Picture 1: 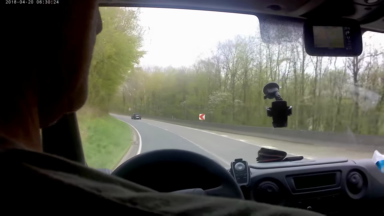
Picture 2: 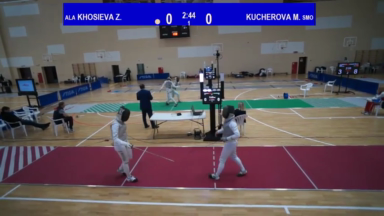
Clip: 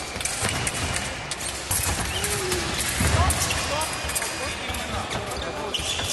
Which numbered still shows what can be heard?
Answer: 2